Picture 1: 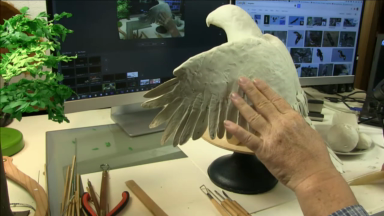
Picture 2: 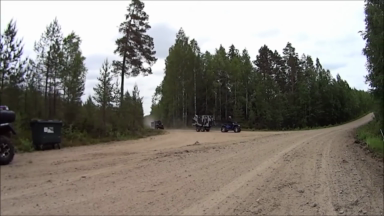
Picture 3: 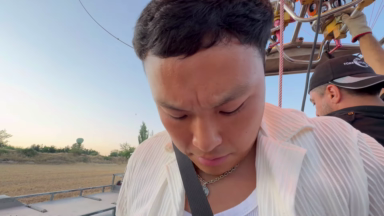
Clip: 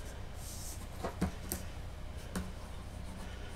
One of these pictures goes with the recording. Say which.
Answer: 1